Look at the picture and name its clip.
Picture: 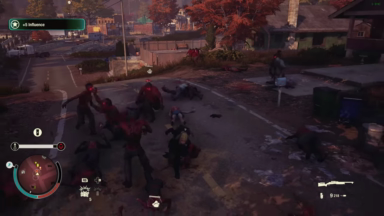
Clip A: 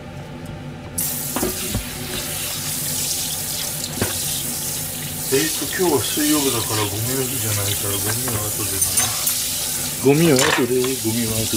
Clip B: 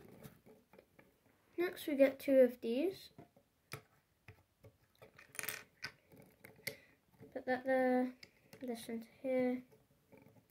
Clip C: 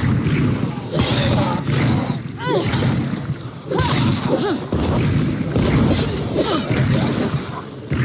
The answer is C